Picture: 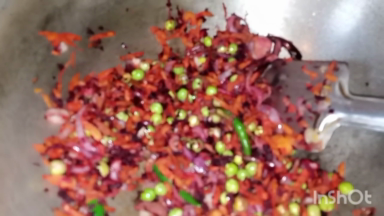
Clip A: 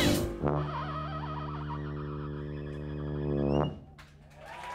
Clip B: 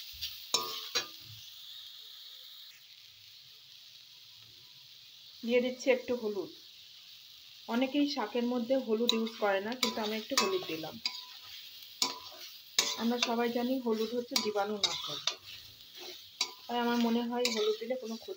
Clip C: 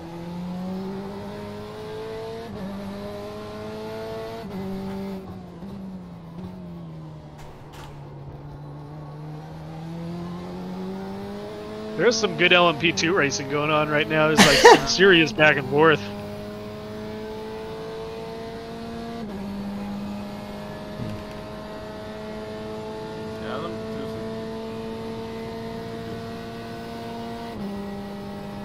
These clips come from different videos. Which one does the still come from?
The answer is B